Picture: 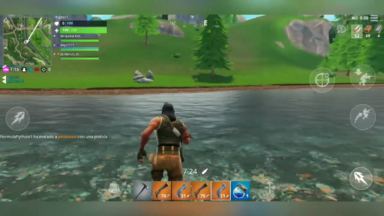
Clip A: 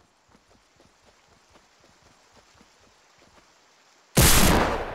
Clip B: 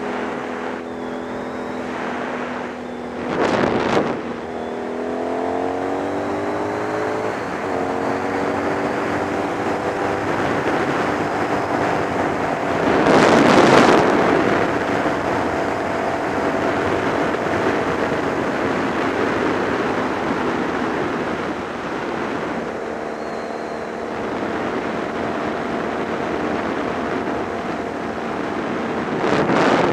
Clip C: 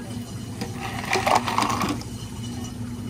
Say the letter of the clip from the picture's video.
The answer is A